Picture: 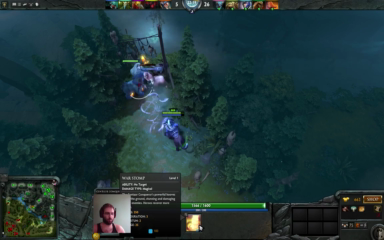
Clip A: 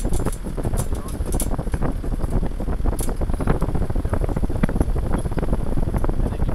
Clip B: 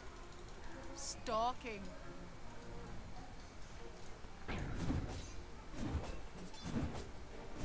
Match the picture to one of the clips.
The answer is B